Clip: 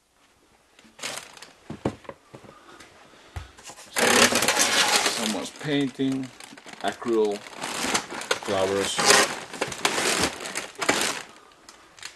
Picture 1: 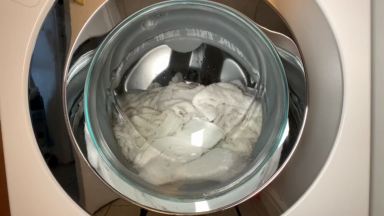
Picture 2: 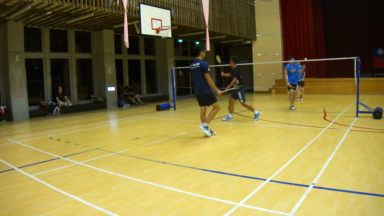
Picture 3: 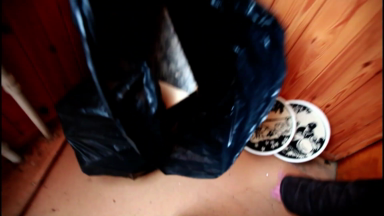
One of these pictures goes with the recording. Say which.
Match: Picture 3